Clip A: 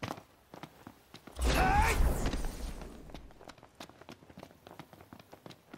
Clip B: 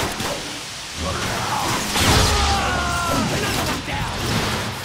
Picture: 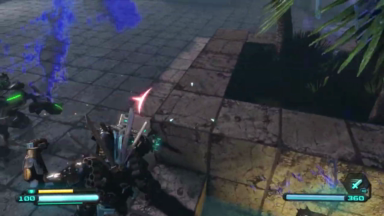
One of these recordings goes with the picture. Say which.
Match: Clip B